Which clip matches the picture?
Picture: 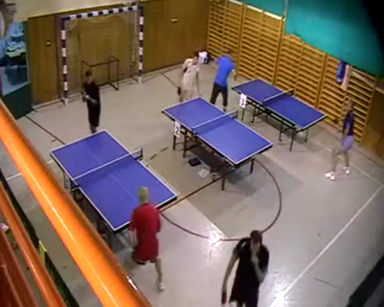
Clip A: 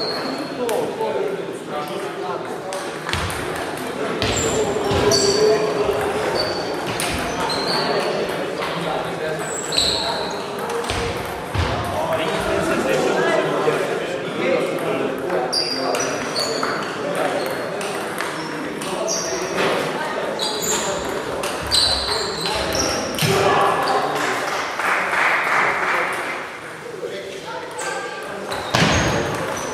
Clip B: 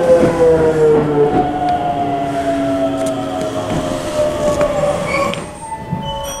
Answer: A